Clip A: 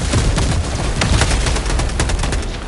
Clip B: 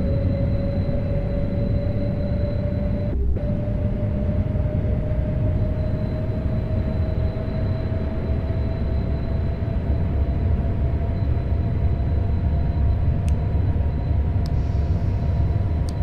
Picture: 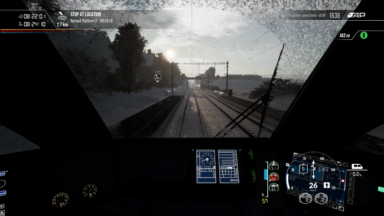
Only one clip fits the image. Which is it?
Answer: B